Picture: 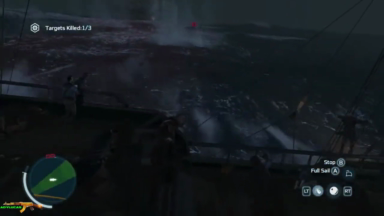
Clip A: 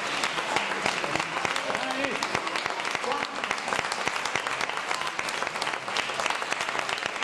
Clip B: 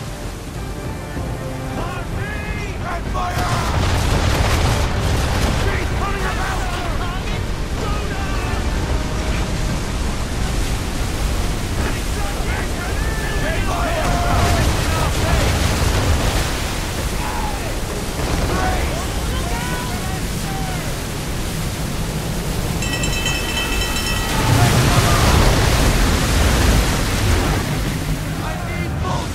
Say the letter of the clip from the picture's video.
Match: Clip B